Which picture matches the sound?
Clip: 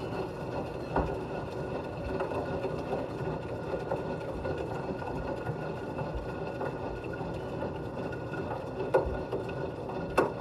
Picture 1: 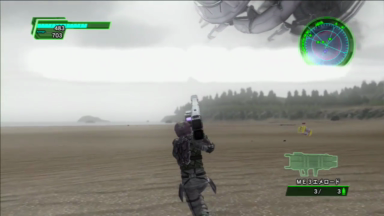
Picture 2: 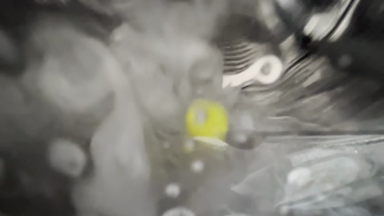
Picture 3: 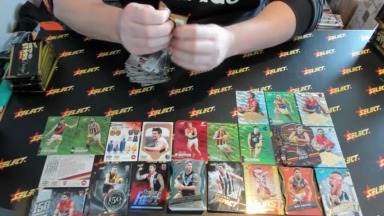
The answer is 2